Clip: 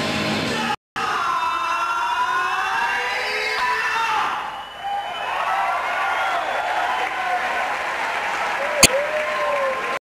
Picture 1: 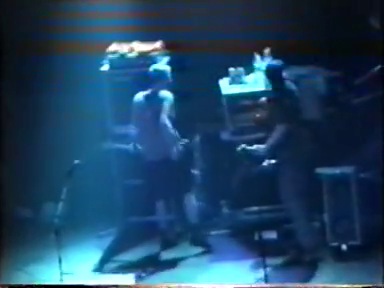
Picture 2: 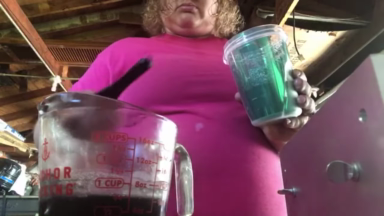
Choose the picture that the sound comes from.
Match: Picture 1